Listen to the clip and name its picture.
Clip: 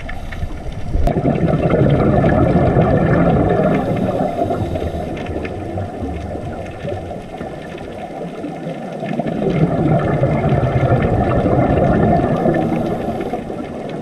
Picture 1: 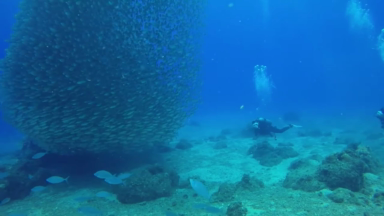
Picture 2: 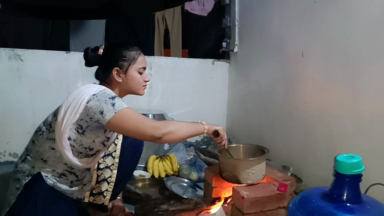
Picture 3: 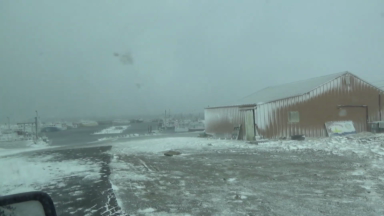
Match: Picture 1